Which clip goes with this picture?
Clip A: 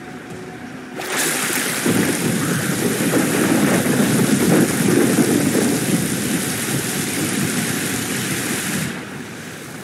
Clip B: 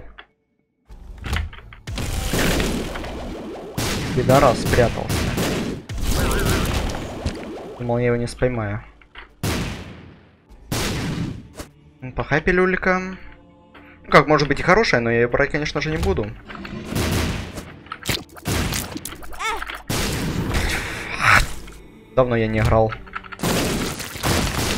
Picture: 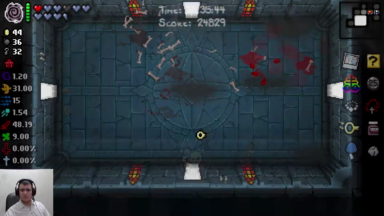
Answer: B